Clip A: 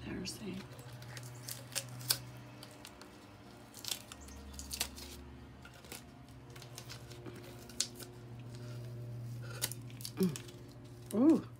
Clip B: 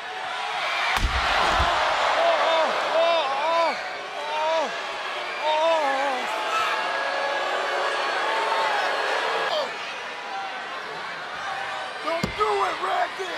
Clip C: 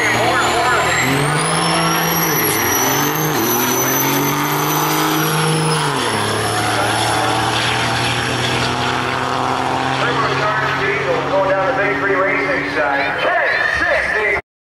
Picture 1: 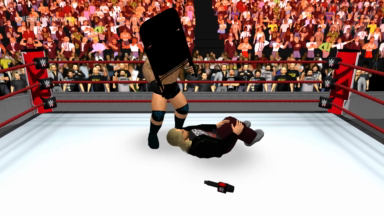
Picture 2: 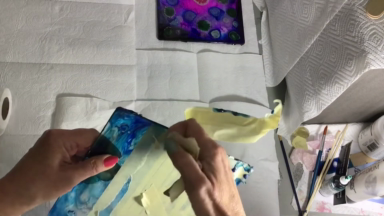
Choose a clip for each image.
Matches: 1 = B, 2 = A